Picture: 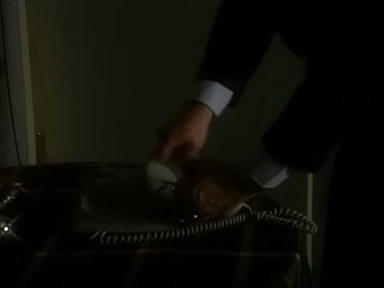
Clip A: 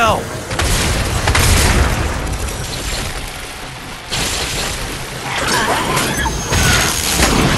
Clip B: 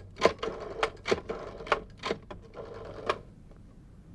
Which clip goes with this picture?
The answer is B